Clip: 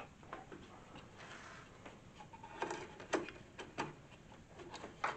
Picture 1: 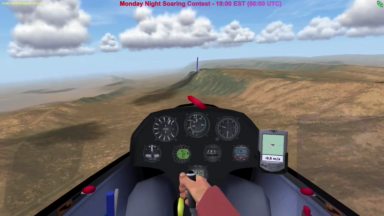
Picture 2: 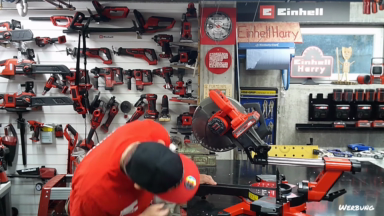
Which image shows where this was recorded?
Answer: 2